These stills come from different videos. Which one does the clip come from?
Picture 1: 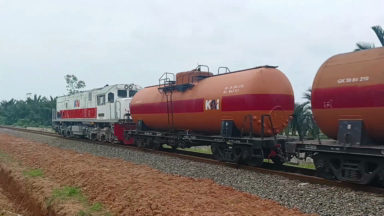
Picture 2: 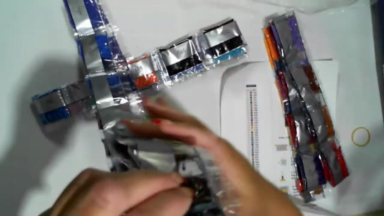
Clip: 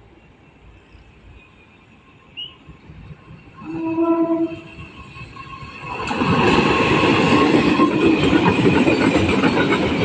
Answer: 1